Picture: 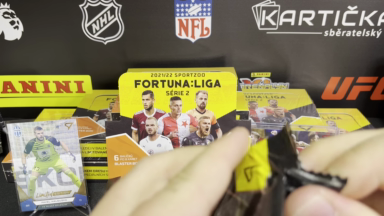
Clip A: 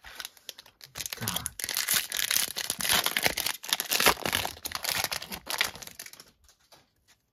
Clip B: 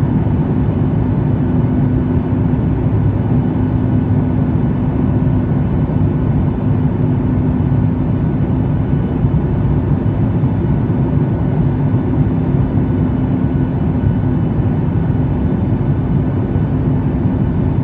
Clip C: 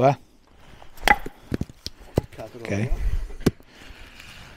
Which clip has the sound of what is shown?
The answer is A